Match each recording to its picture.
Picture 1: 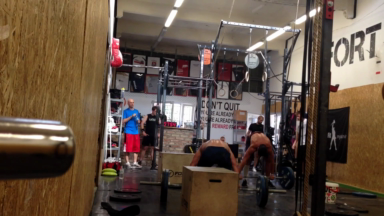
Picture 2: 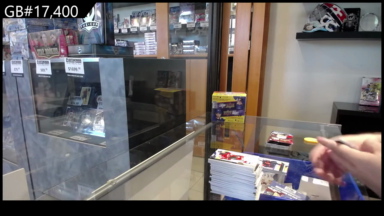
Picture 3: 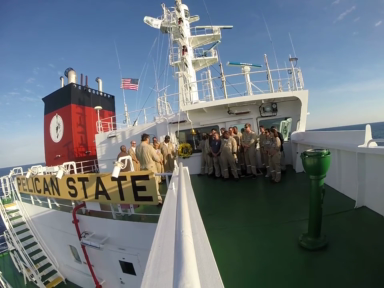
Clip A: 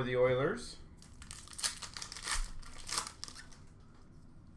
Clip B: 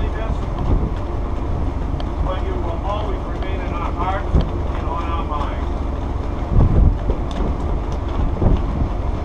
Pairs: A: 2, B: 3